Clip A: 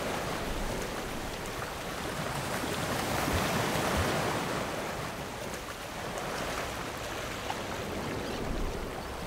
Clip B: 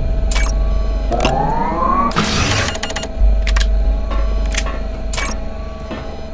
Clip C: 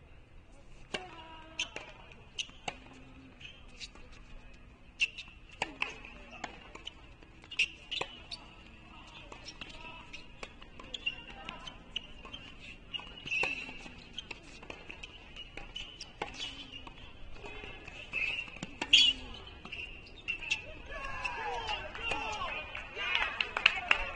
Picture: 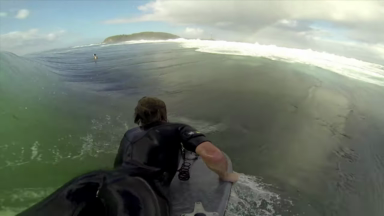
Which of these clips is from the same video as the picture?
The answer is A